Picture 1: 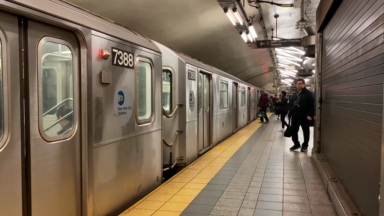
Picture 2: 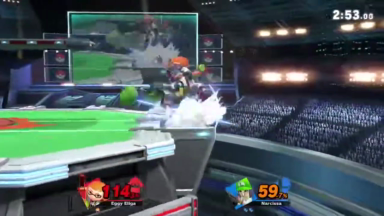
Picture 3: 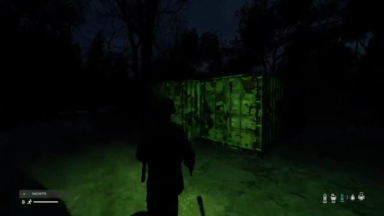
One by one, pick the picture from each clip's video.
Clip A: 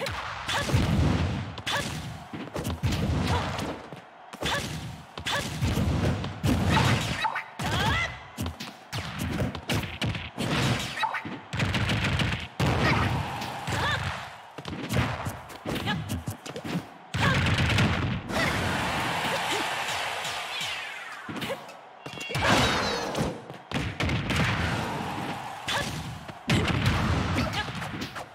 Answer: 2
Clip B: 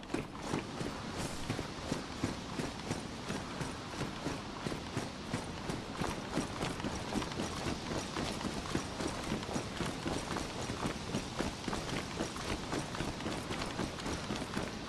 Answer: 3